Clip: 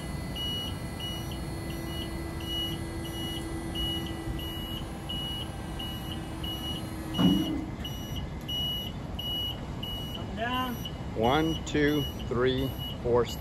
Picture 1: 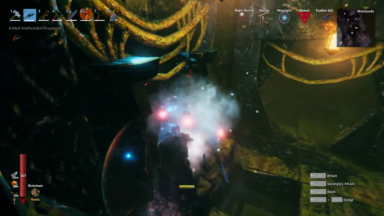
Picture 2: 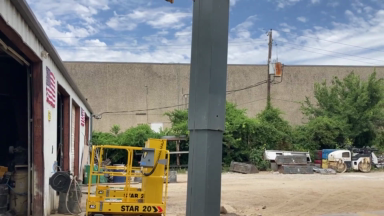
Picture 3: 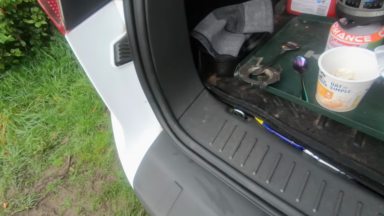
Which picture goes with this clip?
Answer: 2